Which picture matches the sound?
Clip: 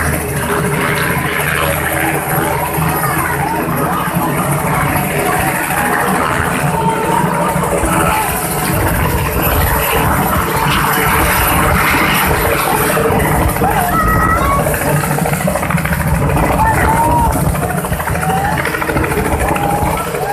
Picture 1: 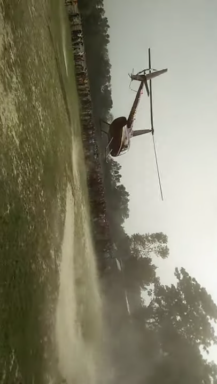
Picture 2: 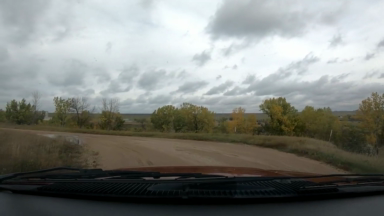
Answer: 1